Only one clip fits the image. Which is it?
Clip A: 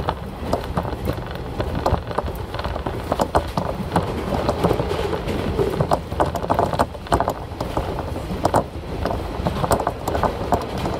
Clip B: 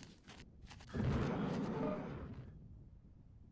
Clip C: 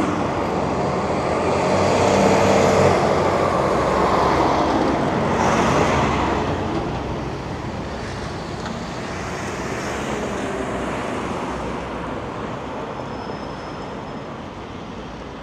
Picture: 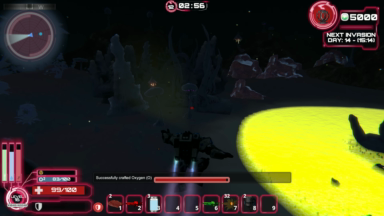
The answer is B